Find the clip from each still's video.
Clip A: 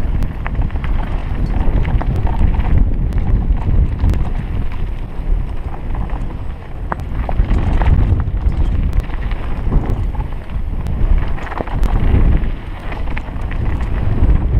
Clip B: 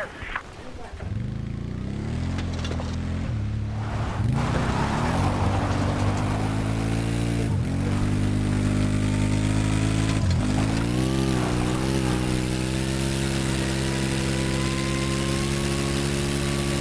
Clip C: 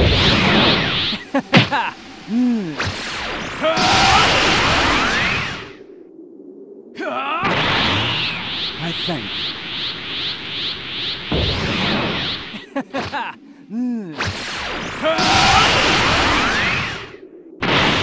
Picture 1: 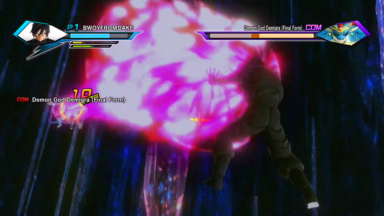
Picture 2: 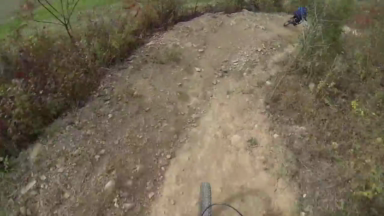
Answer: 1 C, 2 A